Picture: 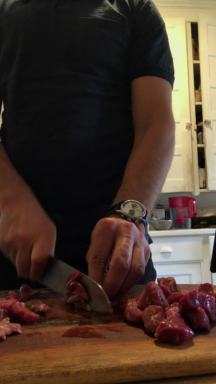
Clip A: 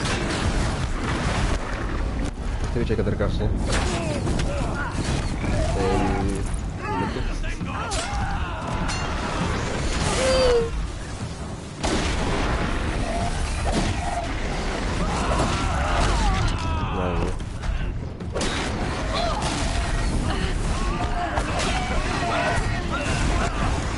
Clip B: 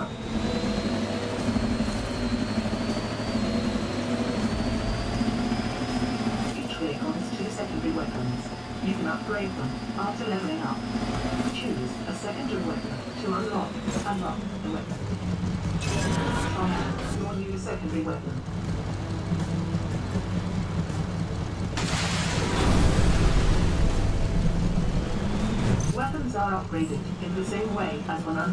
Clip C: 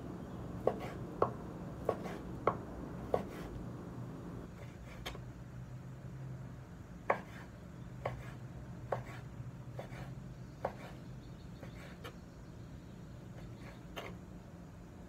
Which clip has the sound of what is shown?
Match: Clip C